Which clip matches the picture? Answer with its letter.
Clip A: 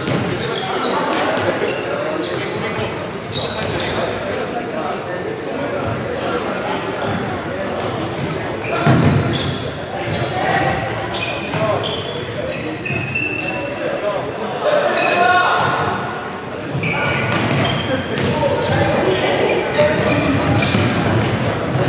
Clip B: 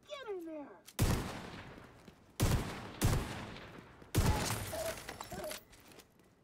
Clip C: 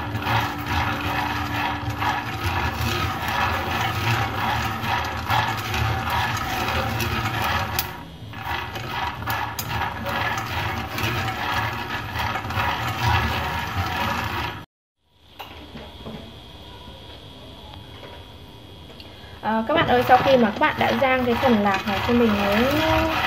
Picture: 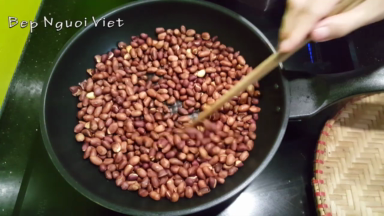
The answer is C